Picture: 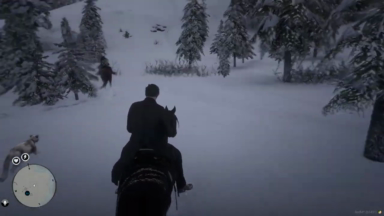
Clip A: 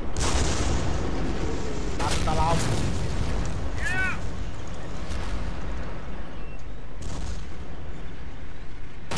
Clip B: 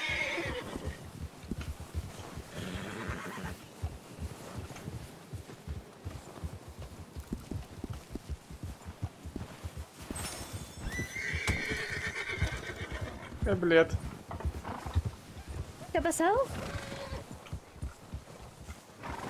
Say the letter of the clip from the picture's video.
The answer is B